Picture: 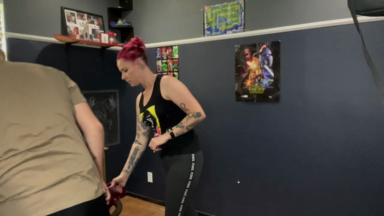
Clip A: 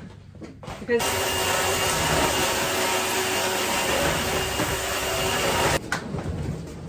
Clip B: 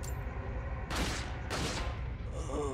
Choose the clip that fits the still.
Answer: A